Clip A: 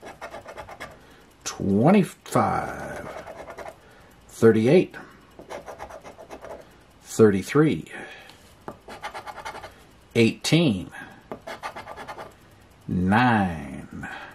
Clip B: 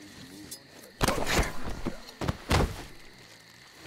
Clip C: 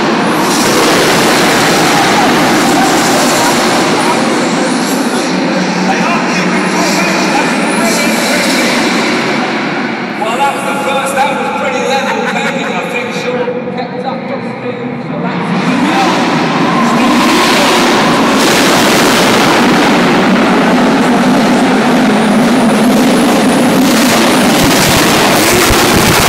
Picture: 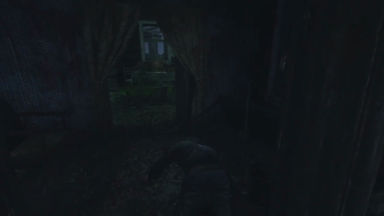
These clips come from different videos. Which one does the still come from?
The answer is B